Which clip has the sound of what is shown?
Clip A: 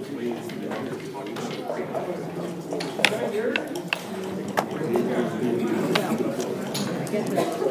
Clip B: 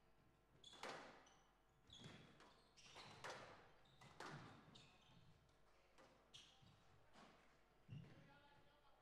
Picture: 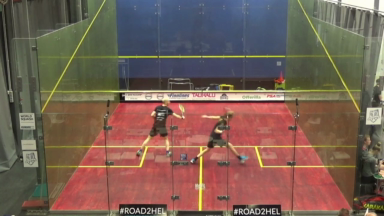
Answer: B